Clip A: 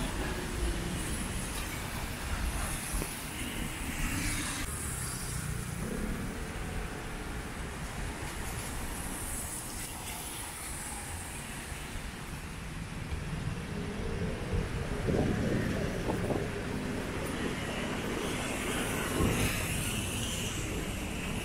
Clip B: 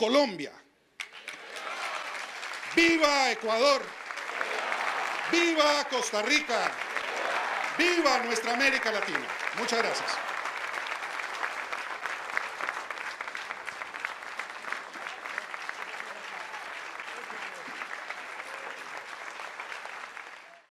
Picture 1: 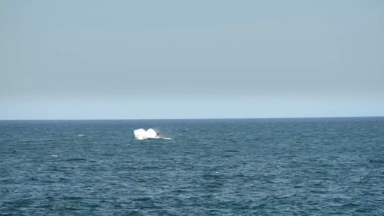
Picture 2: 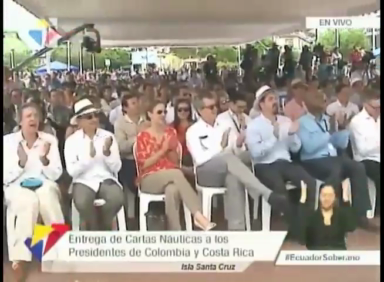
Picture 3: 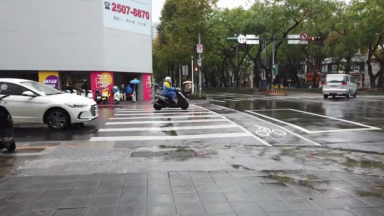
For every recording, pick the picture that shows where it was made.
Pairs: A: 3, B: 2